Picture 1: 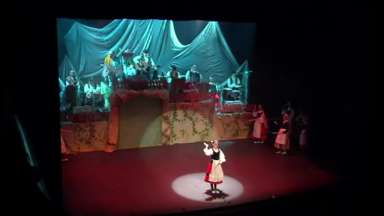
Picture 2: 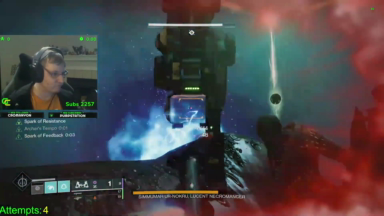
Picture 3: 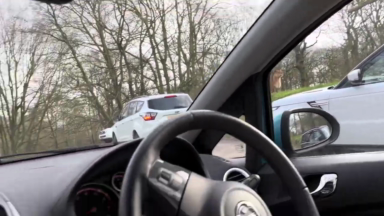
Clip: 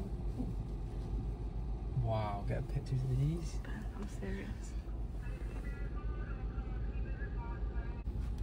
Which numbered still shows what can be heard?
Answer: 3